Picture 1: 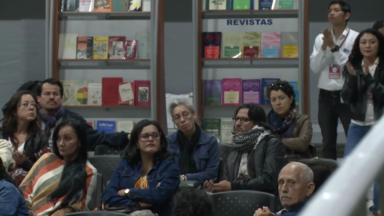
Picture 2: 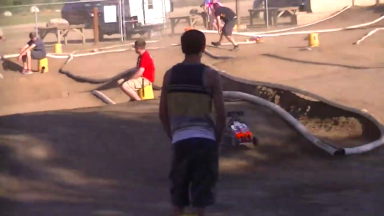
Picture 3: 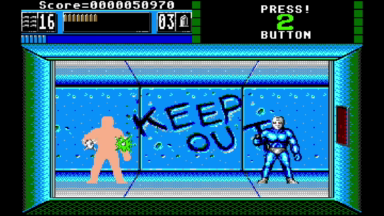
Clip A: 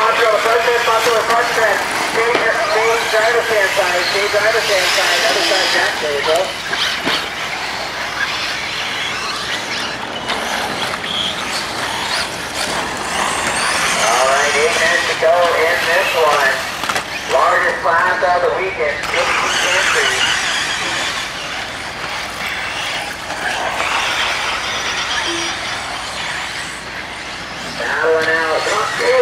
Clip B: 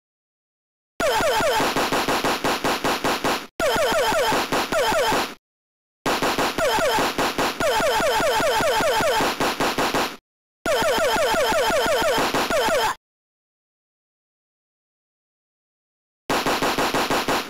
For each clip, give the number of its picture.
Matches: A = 2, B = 3